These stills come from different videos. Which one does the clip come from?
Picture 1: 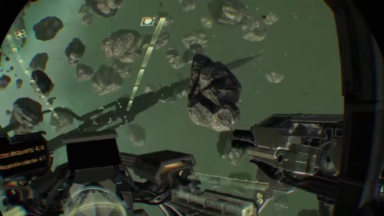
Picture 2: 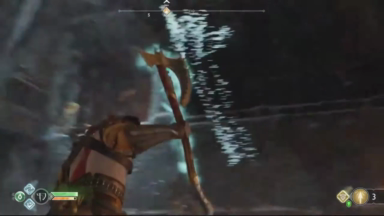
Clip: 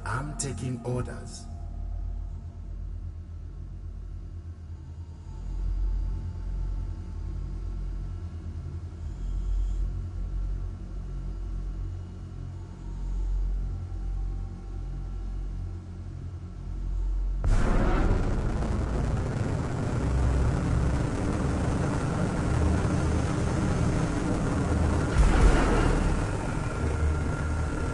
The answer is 1